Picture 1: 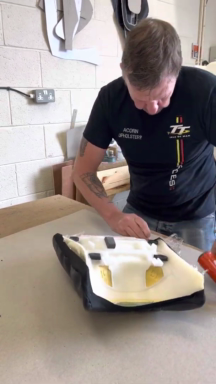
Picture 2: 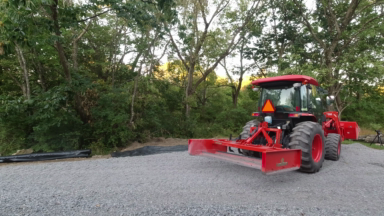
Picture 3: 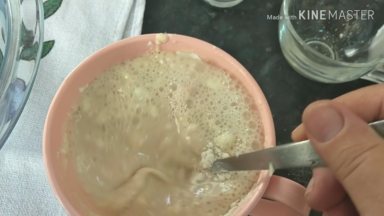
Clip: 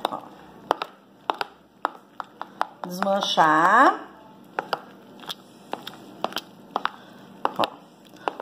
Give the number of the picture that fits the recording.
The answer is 3